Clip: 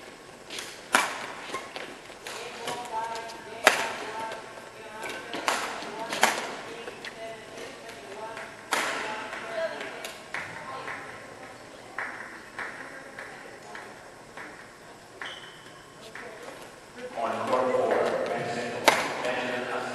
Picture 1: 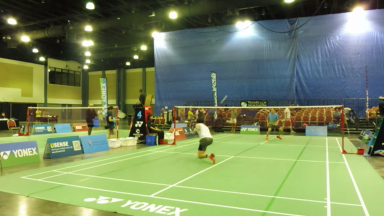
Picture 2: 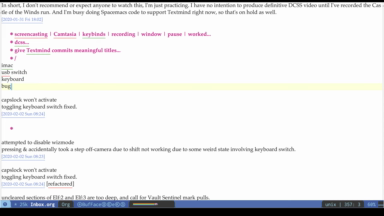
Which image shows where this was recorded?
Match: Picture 1